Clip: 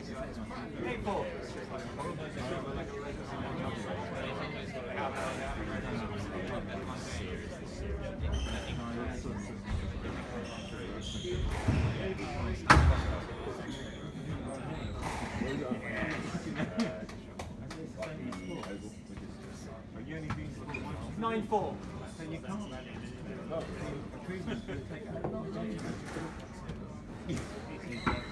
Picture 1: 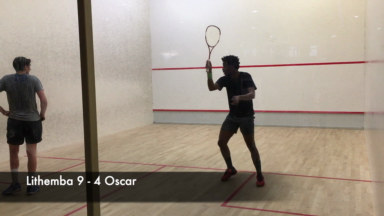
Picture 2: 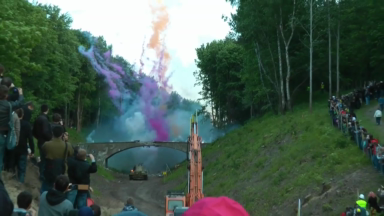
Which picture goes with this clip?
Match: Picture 1